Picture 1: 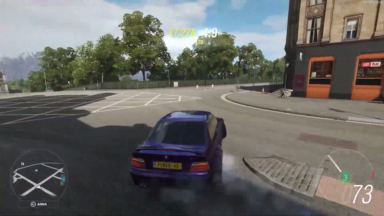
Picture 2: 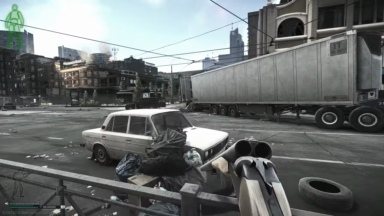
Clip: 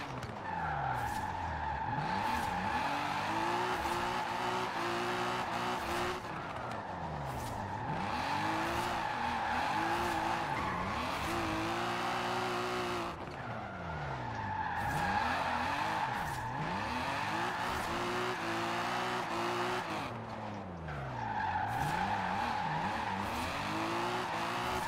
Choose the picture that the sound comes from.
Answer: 1